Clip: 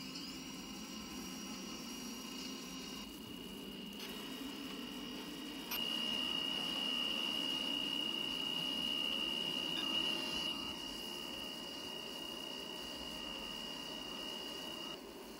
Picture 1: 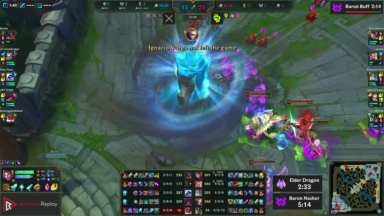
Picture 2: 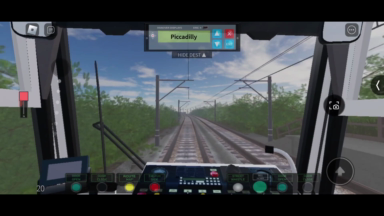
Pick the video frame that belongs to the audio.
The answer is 2